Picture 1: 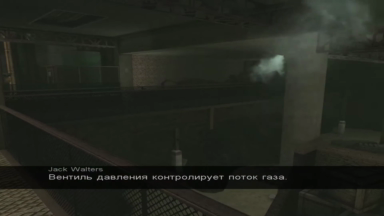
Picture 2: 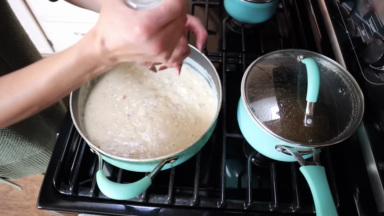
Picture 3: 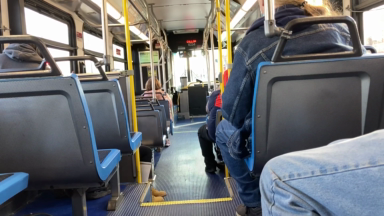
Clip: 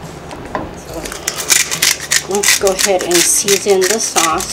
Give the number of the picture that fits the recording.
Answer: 2